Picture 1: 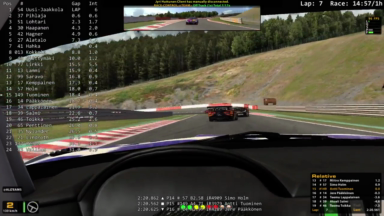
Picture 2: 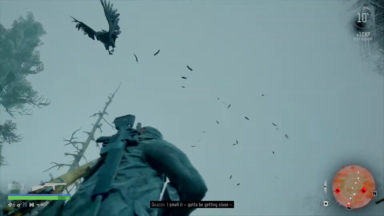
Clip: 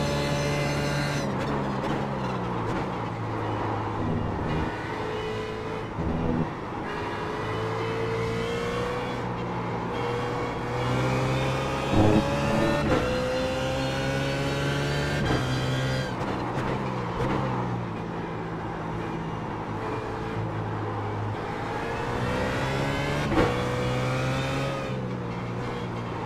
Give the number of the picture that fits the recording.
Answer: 1